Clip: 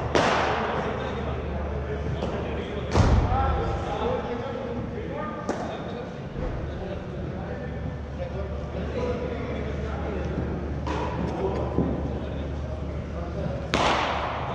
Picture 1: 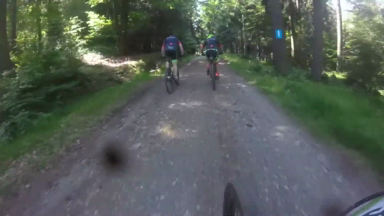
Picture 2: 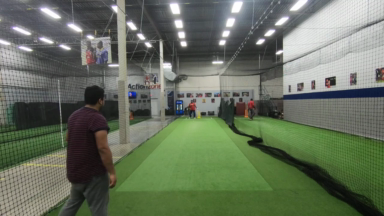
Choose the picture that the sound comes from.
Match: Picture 2